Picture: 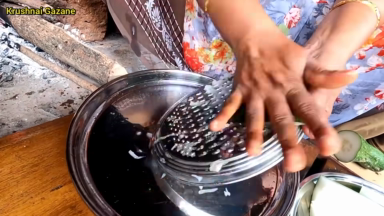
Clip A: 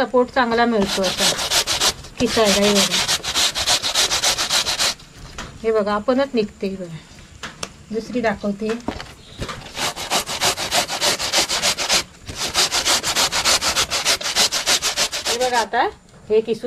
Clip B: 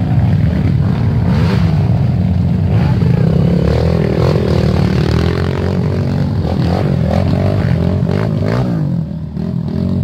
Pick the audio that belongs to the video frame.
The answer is A